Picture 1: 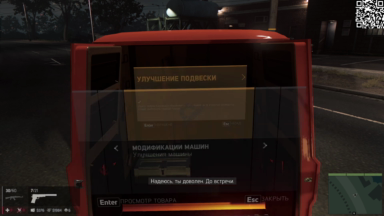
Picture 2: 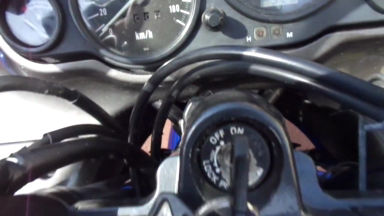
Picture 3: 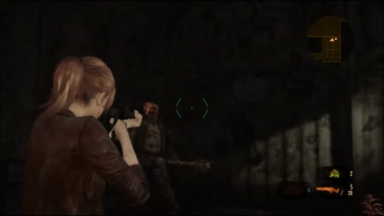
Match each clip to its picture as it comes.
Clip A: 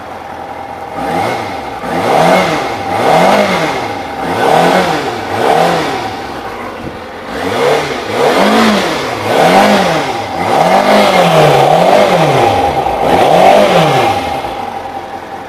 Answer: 2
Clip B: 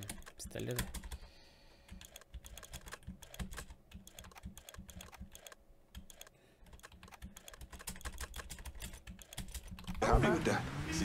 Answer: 1